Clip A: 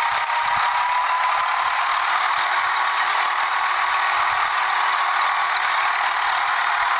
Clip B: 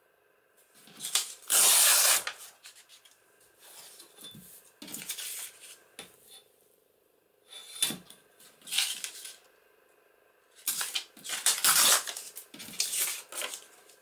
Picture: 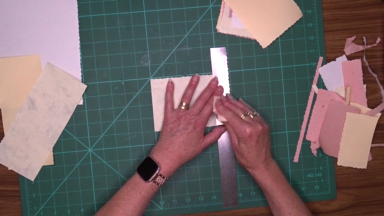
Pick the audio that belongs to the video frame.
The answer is B